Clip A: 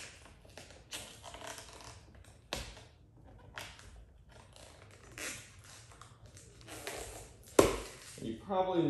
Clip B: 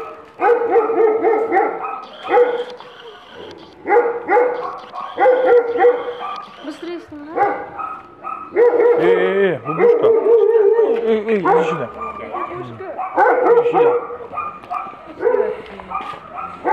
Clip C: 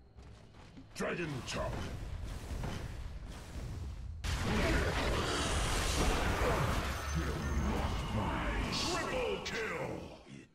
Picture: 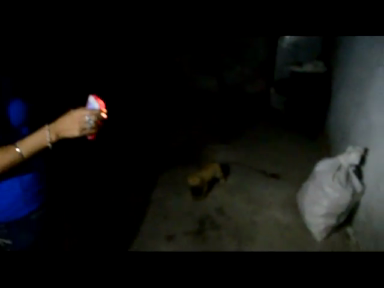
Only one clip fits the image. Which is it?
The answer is B